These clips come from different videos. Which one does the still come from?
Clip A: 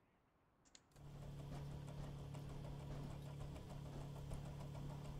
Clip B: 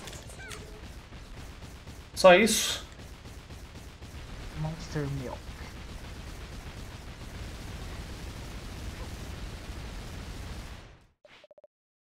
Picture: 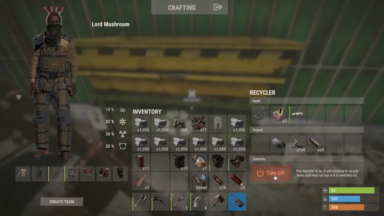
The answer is A